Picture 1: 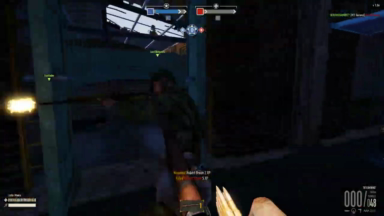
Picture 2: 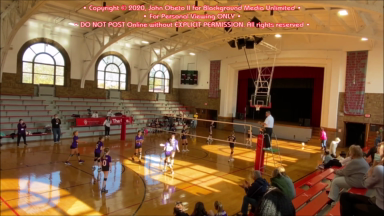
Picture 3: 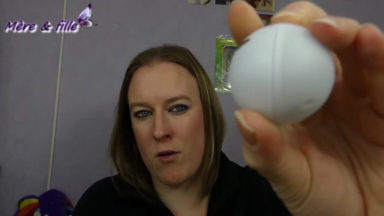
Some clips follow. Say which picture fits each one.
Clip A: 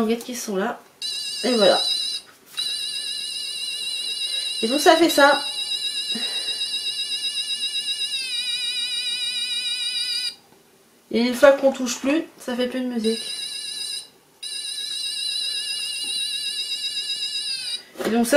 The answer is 3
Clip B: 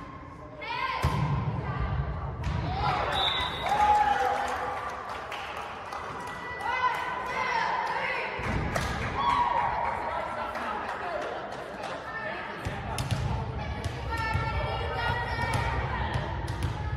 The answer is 2